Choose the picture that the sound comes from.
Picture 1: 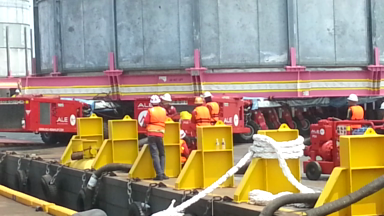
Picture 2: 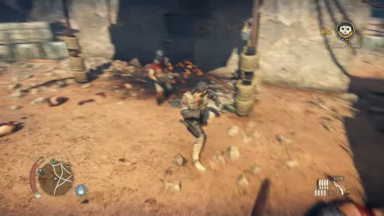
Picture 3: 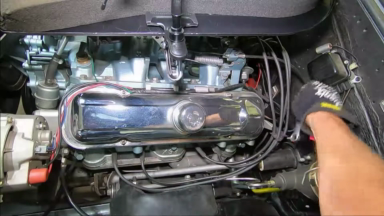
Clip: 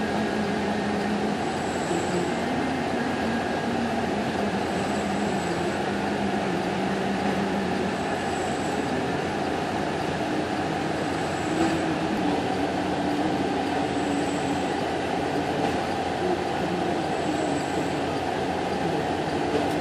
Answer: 1